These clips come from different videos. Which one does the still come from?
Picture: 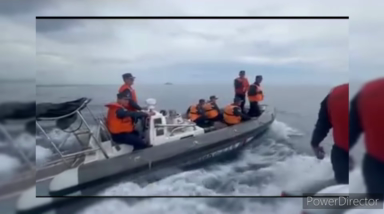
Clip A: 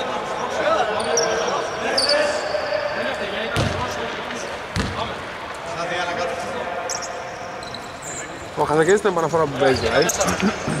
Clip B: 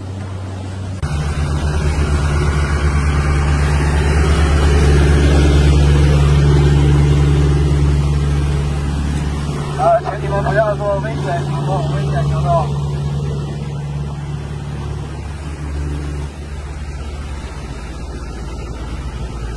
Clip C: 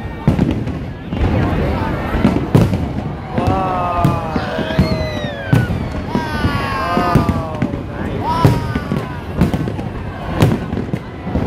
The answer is B